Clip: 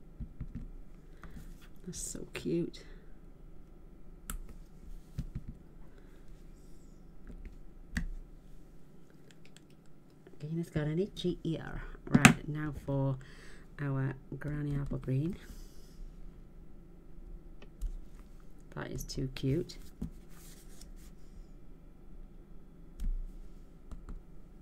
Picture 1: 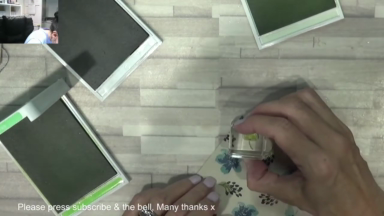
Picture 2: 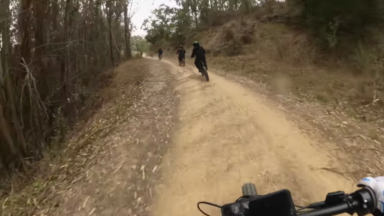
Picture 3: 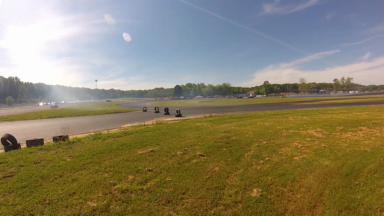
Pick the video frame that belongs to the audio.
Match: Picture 1